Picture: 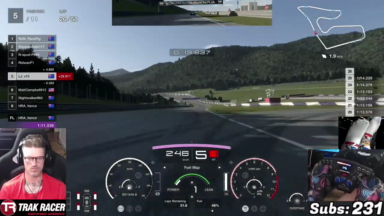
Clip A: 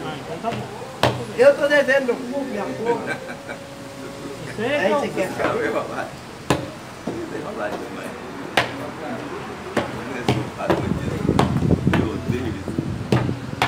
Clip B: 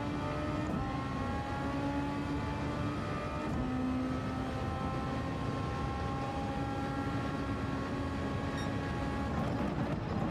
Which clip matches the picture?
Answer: B